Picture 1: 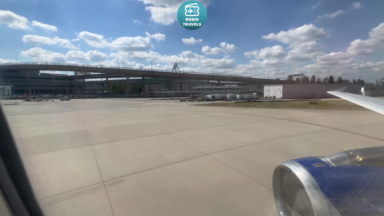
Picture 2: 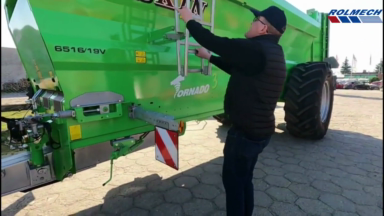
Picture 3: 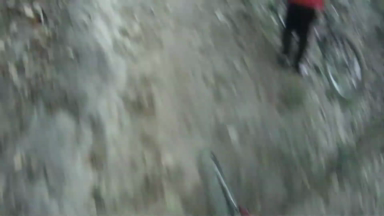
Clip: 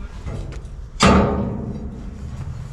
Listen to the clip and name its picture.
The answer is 2